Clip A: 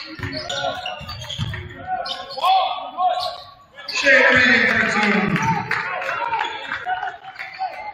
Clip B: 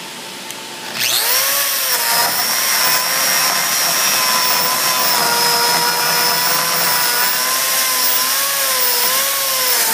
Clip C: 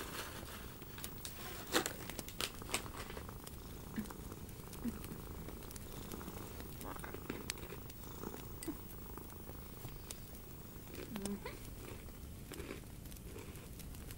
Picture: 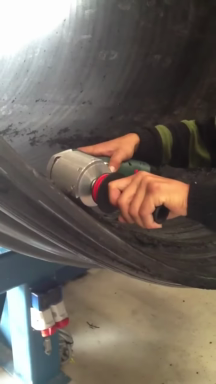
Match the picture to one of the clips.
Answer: B